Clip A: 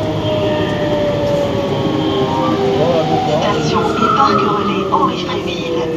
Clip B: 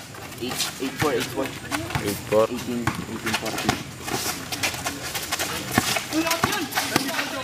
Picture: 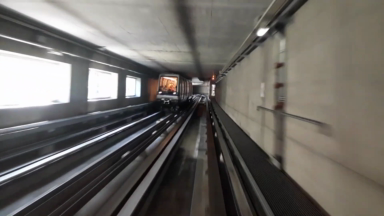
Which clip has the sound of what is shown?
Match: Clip A